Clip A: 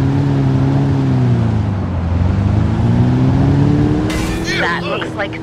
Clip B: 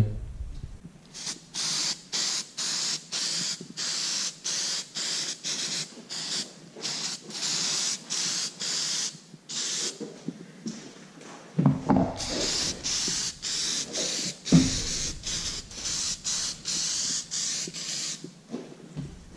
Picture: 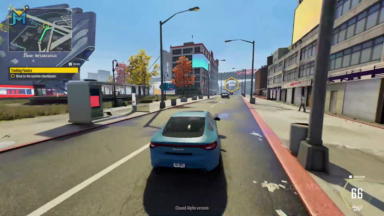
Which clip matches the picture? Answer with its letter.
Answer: A